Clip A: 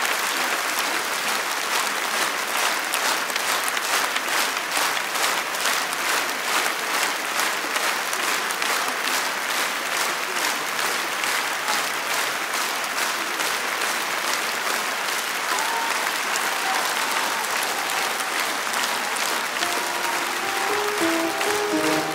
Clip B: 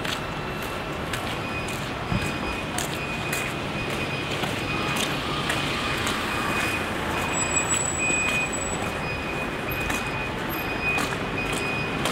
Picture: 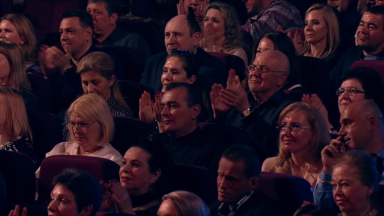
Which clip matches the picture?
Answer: A